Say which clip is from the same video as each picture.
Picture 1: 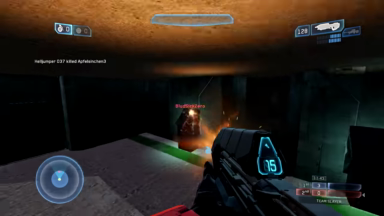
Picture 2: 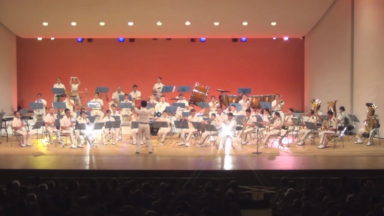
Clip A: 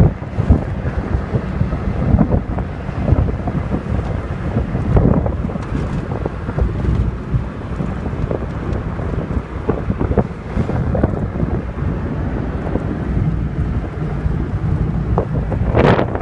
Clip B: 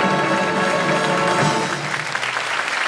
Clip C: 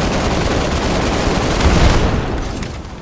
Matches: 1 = C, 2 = B